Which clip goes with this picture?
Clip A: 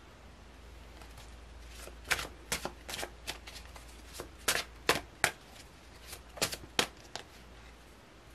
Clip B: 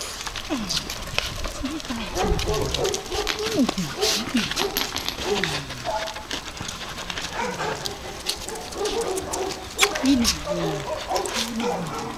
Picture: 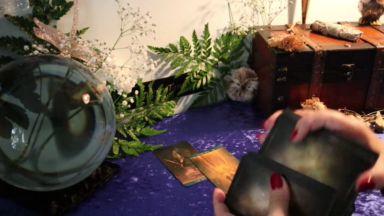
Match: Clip A